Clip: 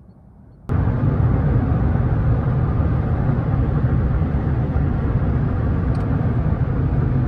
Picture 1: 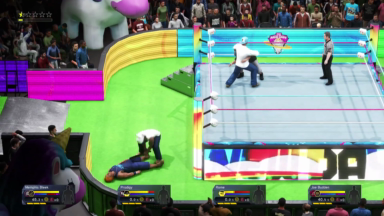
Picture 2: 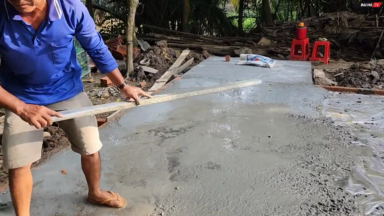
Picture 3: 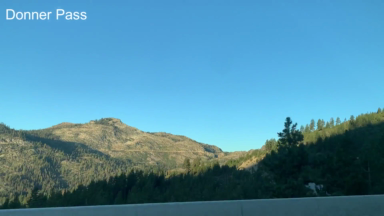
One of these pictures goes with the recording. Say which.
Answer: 3